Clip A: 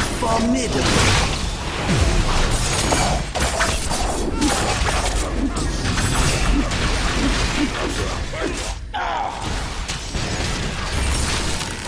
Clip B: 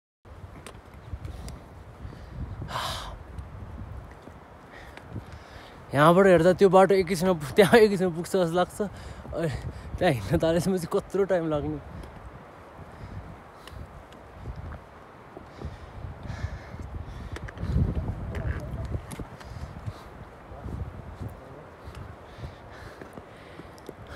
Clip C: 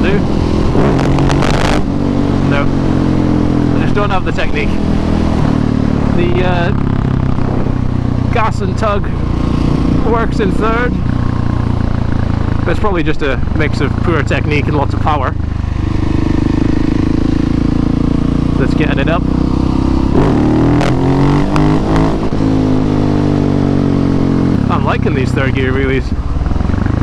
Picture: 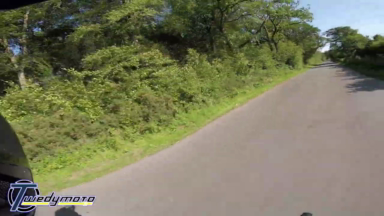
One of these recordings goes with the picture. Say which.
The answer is C